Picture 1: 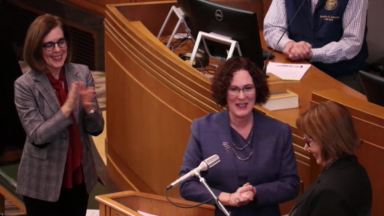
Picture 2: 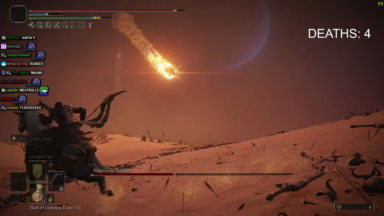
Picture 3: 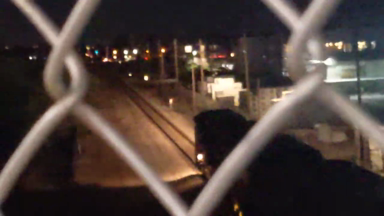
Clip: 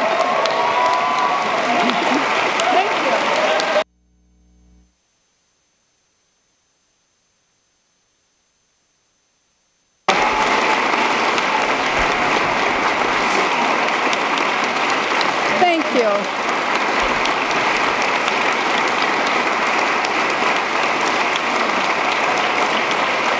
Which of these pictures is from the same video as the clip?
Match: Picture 1